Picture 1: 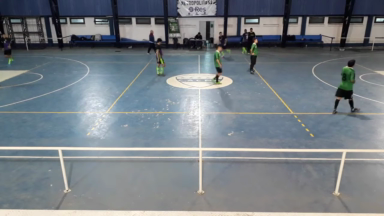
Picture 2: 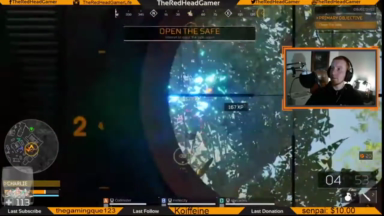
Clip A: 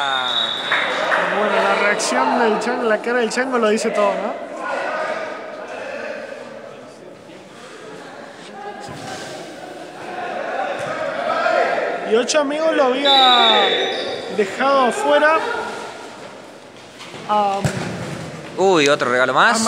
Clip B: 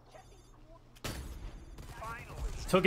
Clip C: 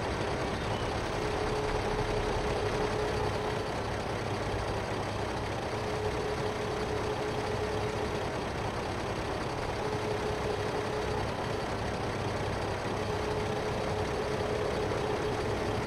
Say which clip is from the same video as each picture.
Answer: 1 A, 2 B